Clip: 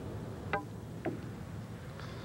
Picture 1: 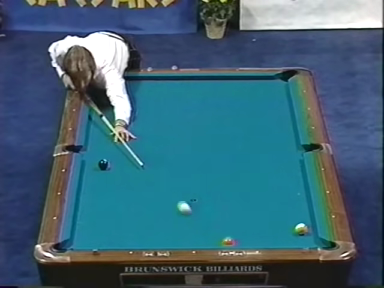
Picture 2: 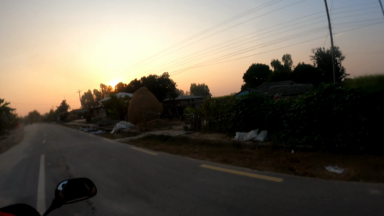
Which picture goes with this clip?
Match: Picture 1